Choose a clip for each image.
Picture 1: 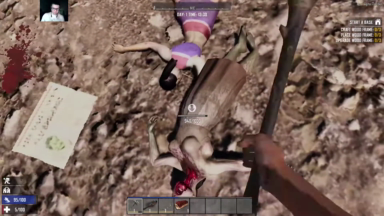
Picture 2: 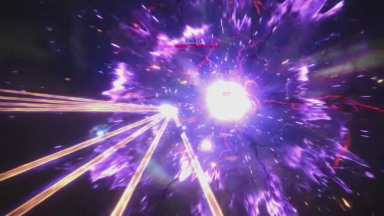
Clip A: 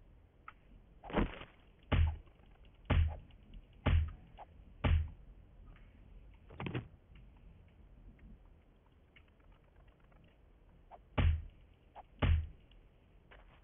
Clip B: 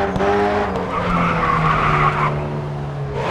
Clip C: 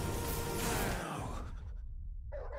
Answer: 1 A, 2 C